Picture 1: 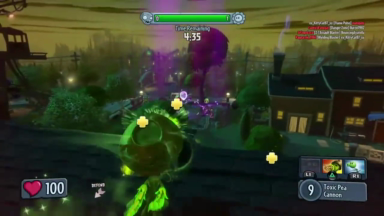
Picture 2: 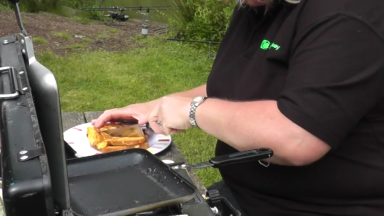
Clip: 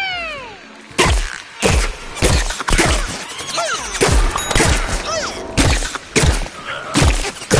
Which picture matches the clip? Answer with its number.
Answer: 1